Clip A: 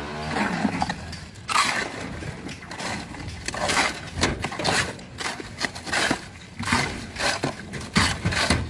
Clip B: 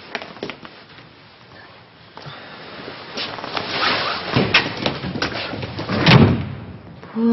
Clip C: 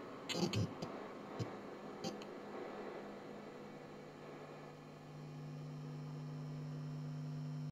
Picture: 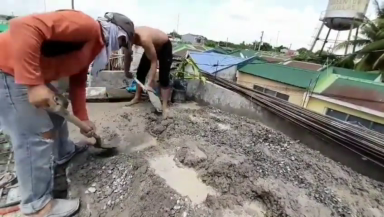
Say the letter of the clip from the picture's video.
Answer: A